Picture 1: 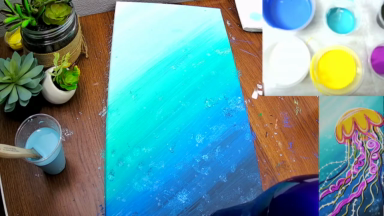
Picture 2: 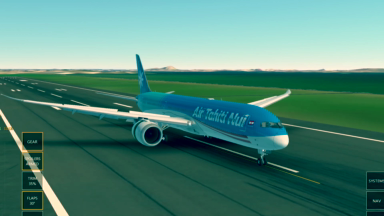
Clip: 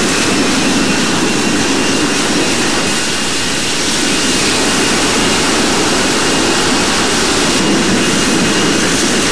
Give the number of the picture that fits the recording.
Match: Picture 2